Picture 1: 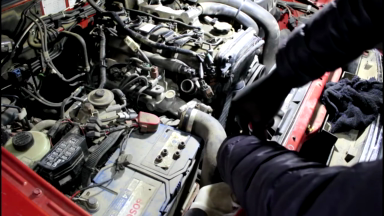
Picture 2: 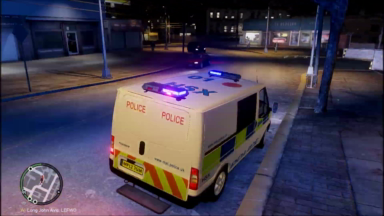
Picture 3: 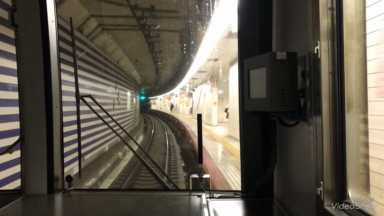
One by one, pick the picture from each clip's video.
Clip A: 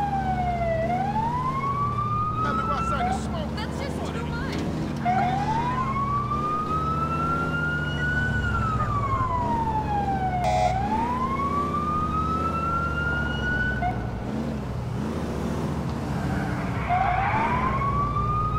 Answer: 2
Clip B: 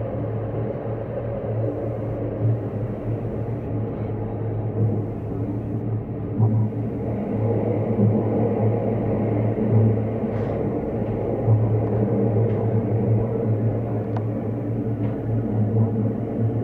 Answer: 3